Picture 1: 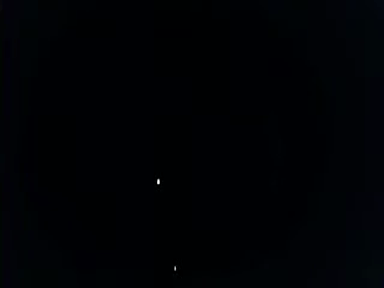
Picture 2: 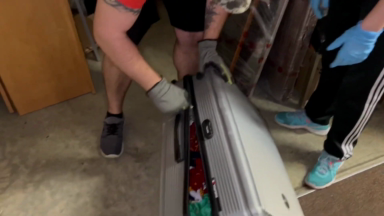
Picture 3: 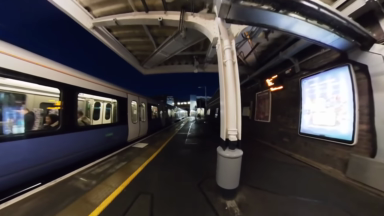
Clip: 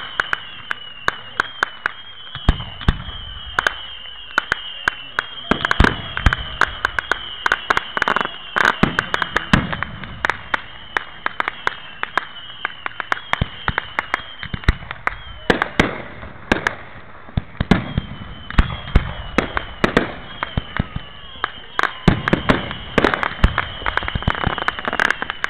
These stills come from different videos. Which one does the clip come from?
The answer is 1